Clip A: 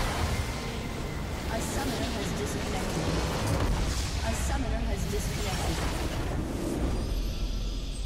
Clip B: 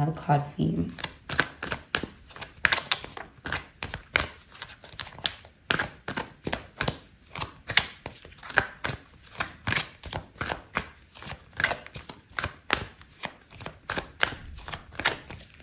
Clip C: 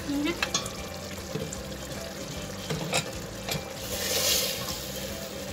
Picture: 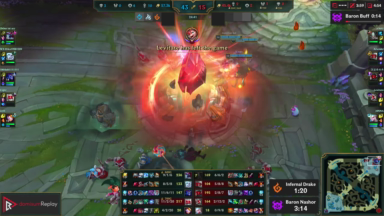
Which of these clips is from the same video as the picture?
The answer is A